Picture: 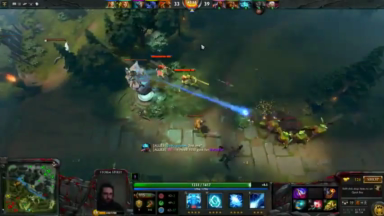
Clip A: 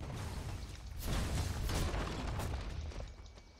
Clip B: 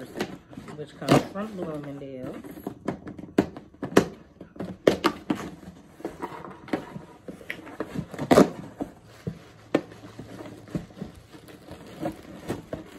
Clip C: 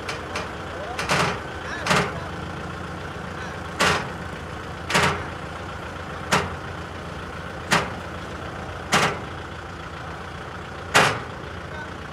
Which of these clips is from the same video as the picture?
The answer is A